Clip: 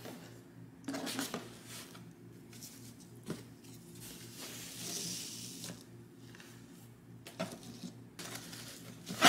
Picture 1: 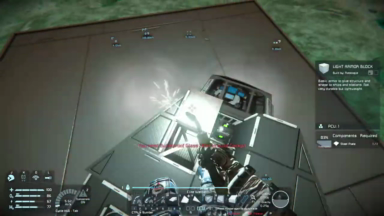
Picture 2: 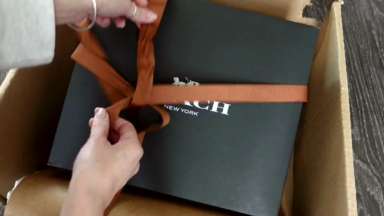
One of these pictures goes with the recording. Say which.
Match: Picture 2